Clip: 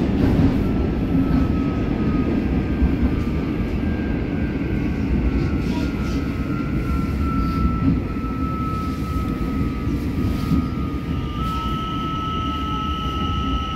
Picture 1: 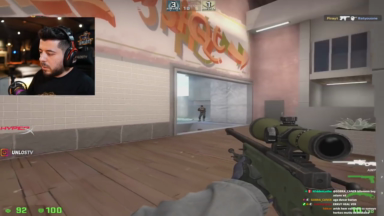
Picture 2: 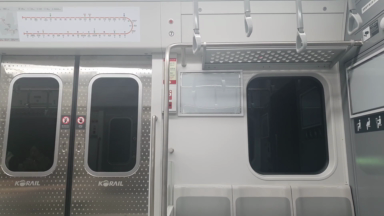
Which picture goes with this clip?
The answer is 2